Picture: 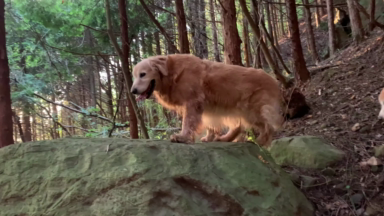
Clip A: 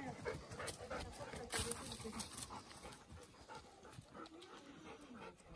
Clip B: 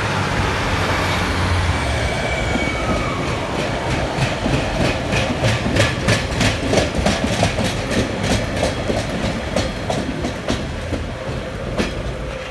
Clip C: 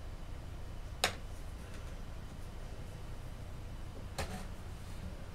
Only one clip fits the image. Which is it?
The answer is A